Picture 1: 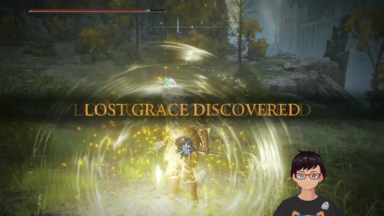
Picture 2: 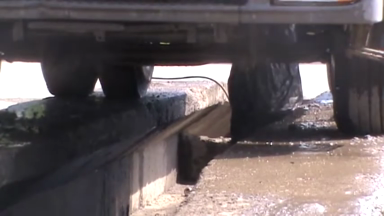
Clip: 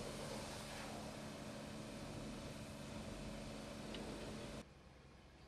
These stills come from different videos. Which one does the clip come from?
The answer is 2